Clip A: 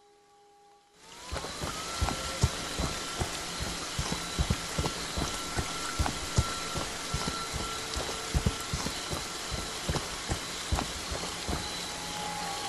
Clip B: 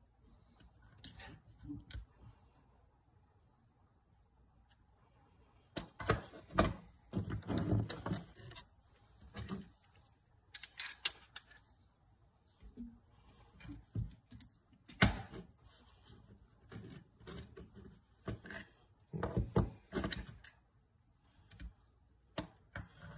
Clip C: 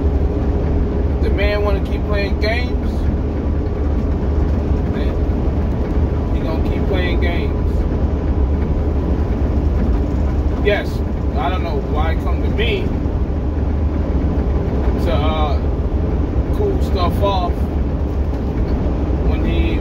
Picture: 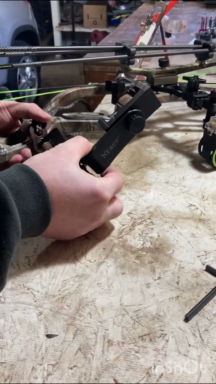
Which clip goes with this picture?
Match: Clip B